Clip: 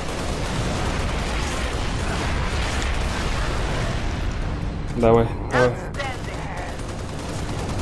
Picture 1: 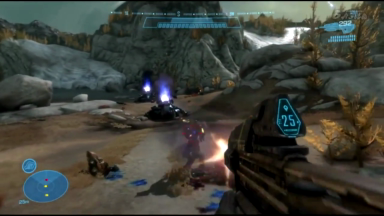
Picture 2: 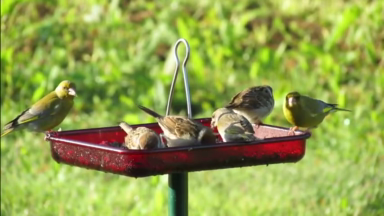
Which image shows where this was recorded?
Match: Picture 1